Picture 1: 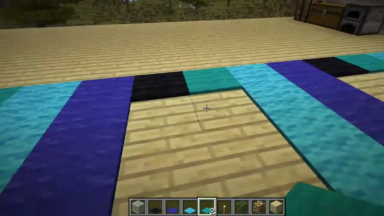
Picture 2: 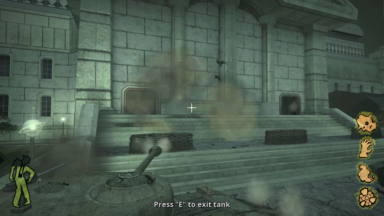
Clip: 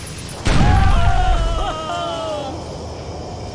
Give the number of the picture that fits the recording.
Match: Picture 2